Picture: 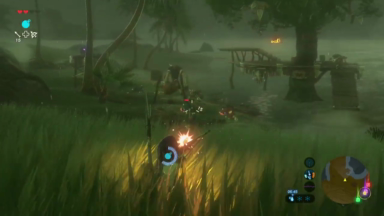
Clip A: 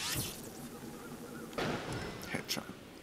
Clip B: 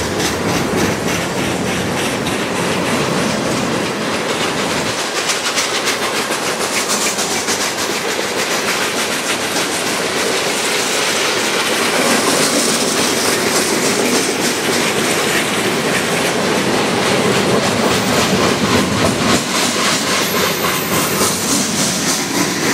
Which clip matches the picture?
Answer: A